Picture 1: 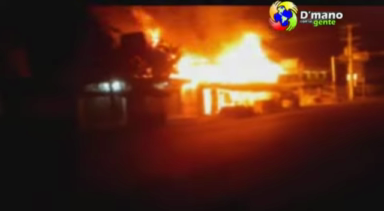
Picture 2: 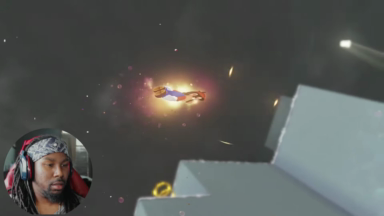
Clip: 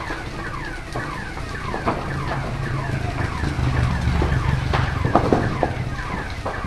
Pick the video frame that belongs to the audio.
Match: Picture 1